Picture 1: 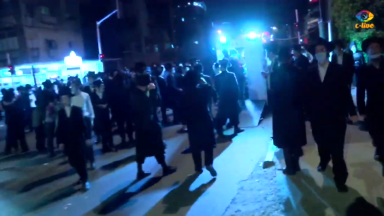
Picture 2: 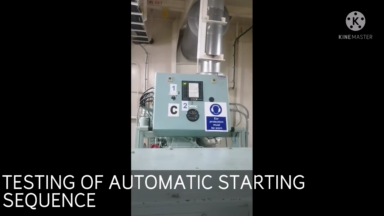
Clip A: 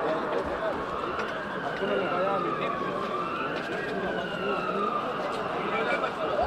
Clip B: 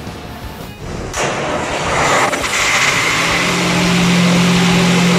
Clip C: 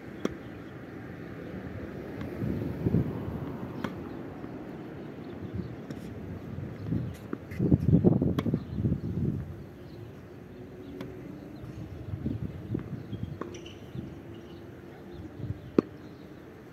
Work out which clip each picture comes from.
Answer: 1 A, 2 B